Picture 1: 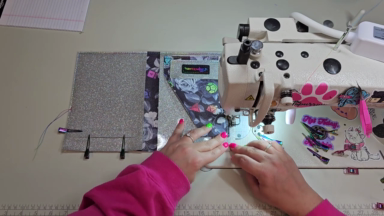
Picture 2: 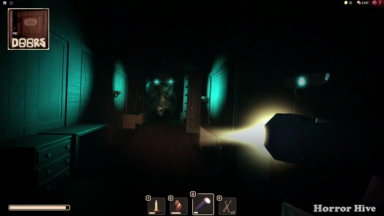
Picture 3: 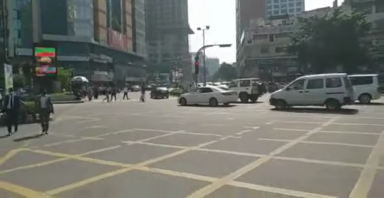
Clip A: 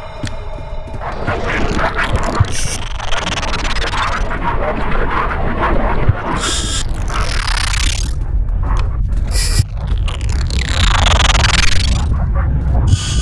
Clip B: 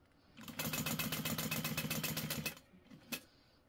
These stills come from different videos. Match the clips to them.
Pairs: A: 2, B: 1